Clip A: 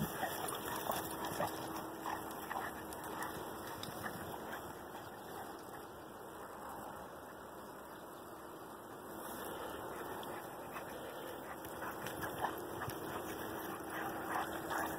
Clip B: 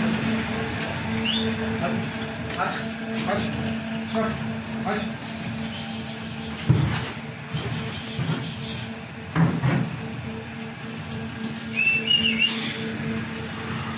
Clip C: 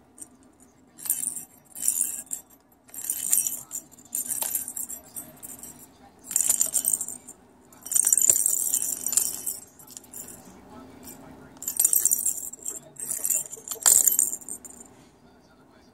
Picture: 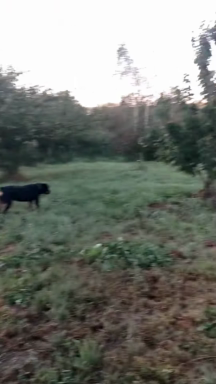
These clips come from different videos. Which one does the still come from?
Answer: A